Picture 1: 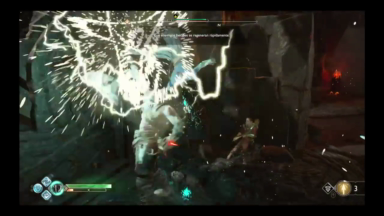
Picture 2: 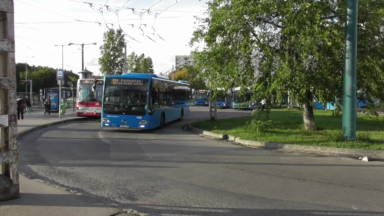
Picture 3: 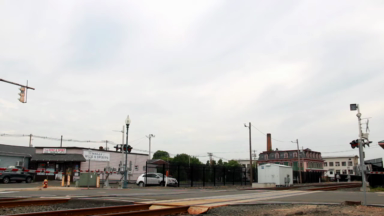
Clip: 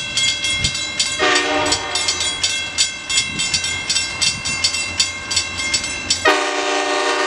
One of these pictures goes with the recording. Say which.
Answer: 3